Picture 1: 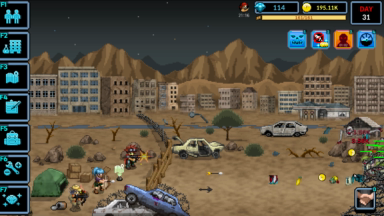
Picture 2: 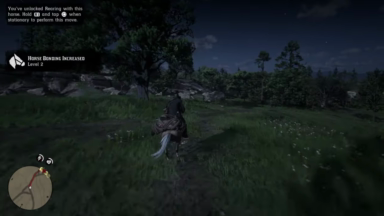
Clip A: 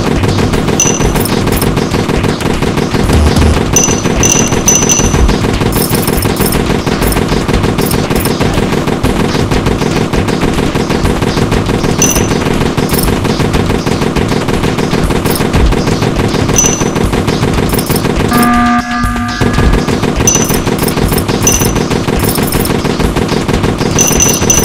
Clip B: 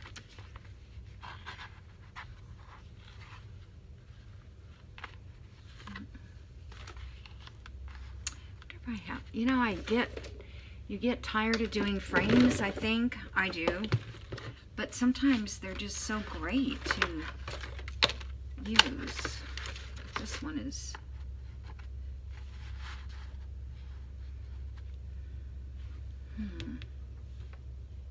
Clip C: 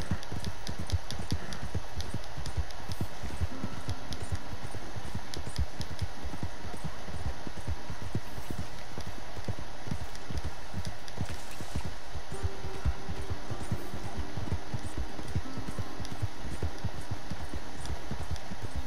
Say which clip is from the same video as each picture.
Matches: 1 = A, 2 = C